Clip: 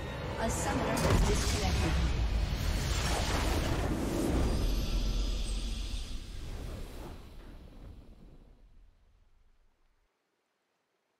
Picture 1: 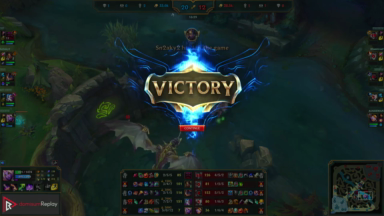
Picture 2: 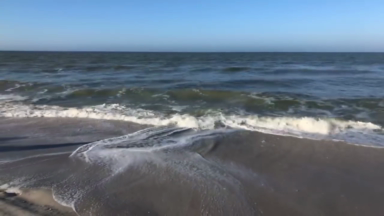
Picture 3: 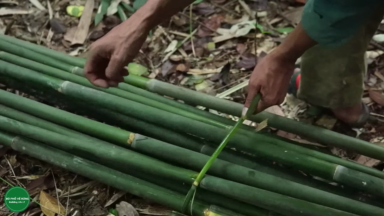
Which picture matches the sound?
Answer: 1